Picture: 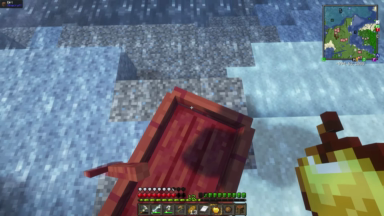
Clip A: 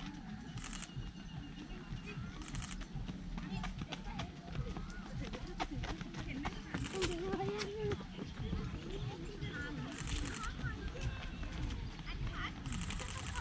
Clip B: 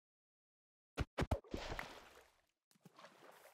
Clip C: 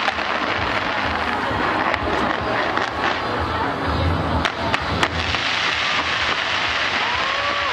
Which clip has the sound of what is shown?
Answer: B